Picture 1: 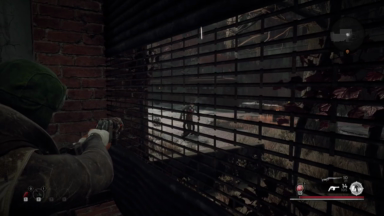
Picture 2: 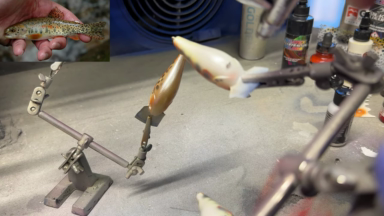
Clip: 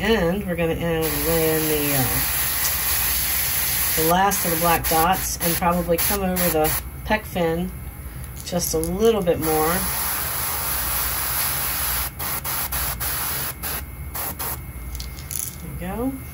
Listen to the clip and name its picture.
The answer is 2